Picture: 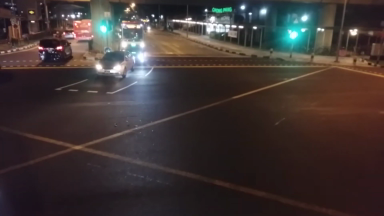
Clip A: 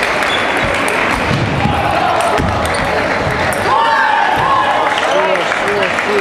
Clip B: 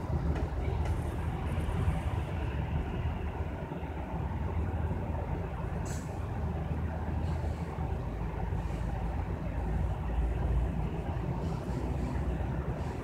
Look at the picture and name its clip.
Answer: B